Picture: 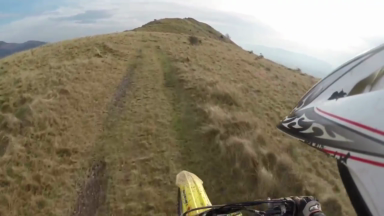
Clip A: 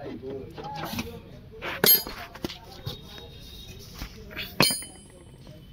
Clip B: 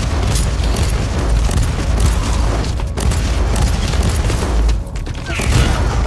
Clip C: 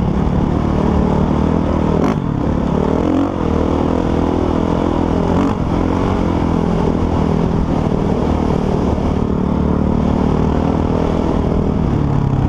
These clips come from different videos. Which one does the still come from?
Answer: C